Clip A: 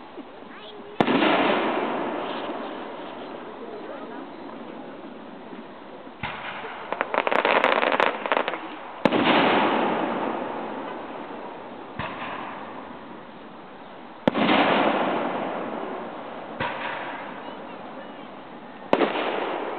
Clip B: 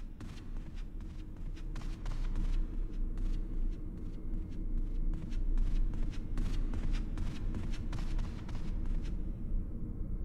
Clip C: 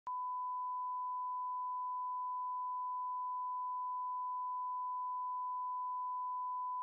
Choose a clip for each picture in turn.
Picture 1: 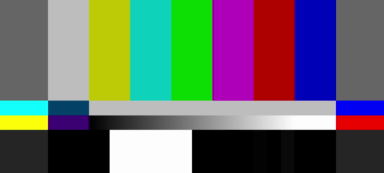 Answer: C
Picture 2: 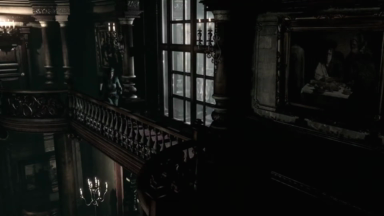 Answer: B